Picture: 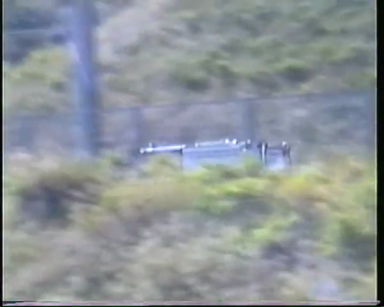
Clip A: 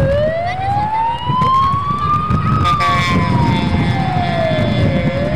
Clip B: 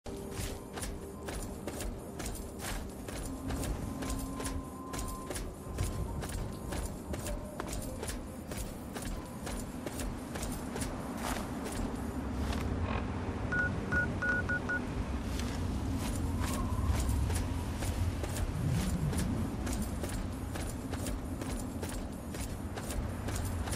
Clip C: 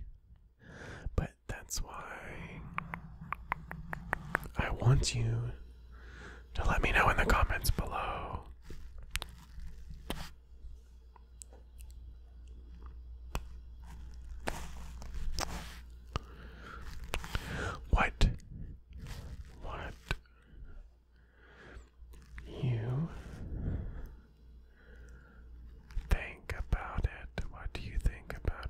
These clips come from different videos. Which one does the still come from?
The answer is A